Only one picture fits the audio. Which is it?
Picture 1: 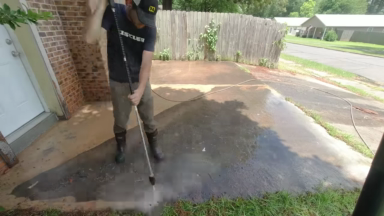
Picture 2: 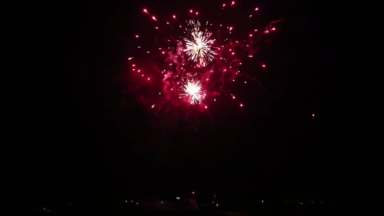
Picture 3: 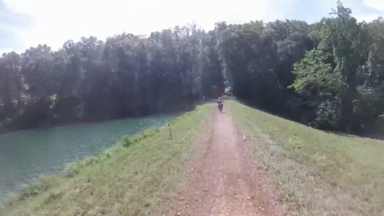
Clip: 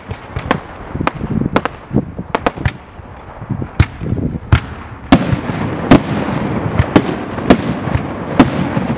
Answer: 2